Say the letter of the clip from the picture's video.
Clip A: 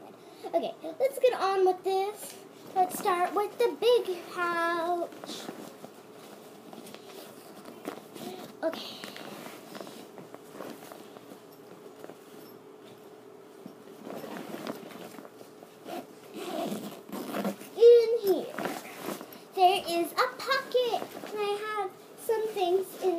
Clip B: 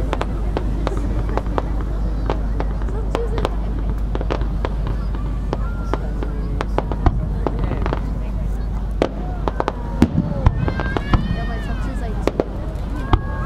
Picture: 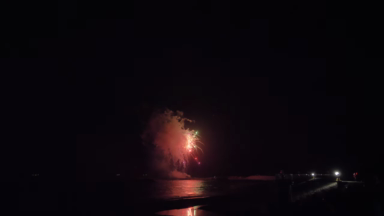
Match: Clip B